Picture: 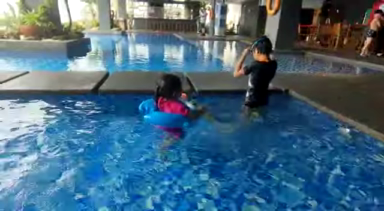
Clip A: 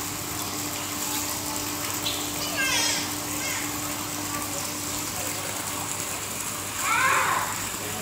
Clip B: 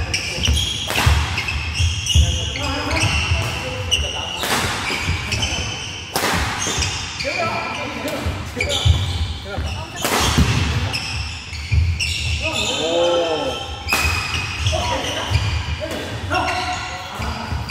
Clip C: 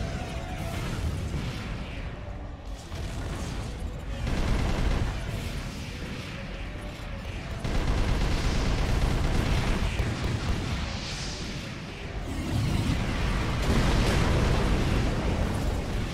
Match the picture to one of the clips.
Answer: A